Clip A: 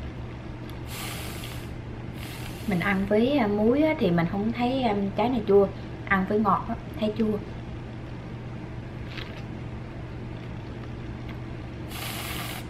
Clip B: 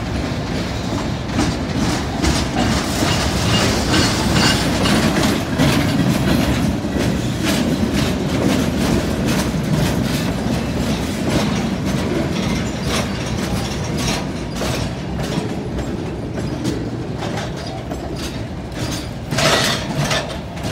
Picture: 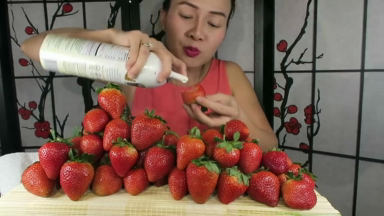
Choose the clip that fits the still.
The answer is A